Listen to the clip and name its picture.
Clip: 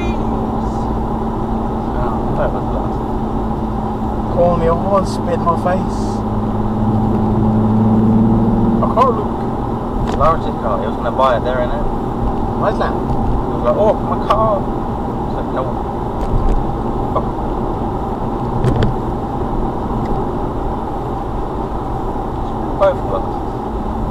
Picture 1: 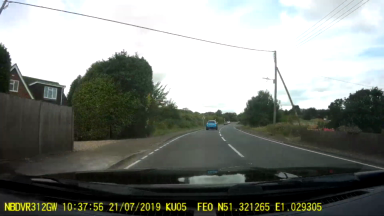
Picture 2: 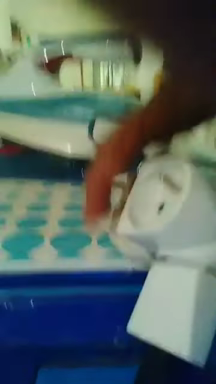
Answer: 1